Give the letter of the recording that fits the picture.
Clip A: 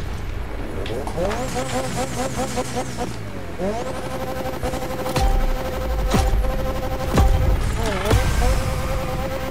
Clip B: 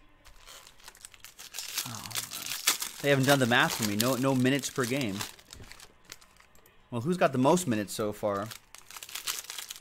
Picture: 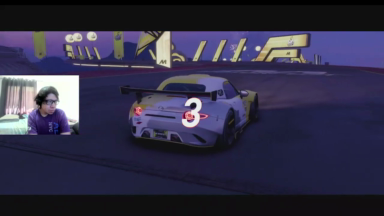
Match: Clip A